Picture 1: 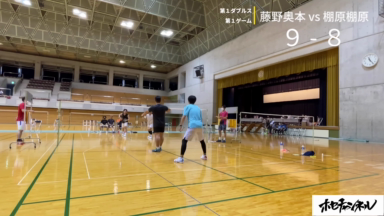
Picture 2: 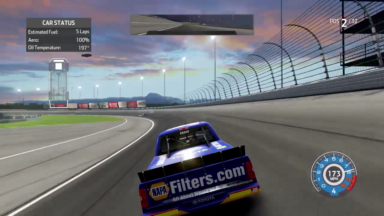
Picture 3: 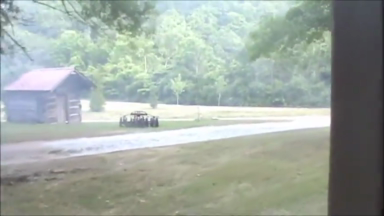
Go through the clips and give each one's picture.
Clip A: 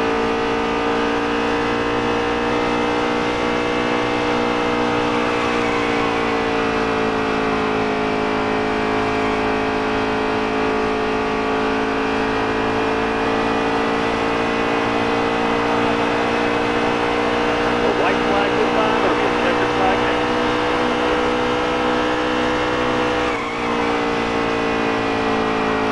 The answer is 2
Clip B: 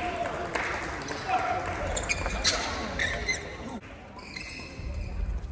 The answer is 1